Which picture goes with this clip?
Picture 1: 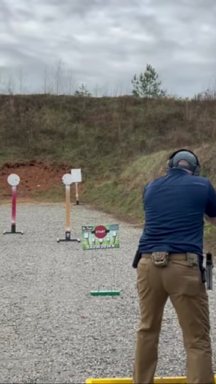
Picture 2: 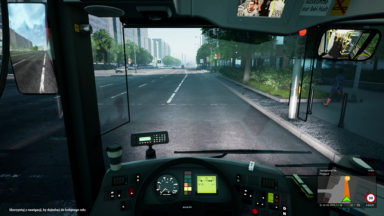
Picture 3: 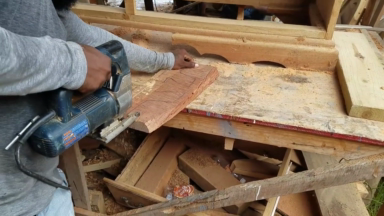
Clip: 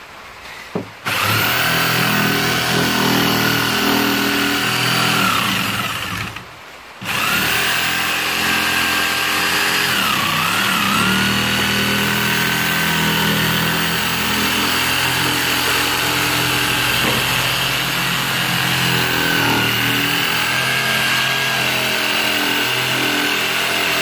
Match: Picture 3